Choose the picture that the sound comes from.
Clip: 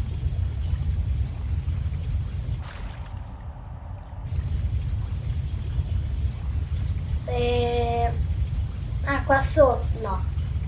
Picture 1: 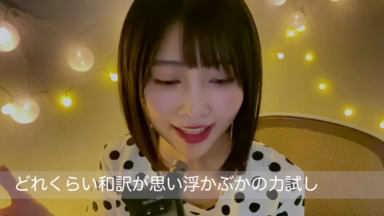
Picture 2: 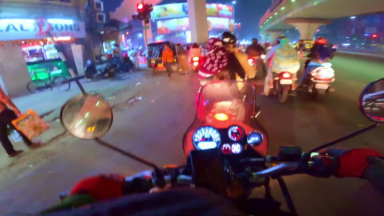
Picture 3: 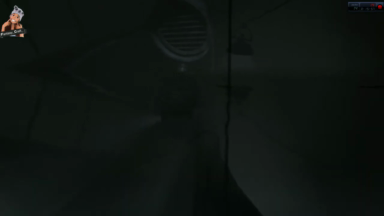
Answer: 3